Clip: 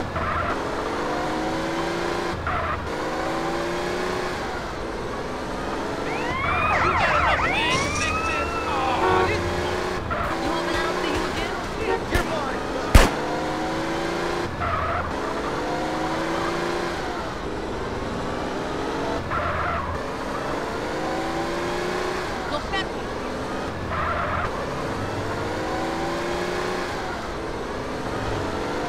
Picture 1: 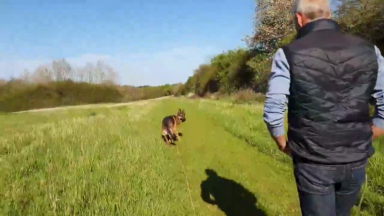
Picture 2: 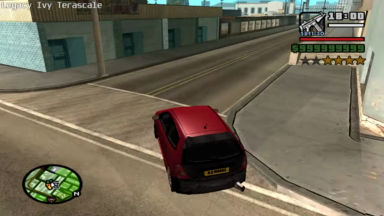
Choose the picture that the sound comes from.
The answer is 2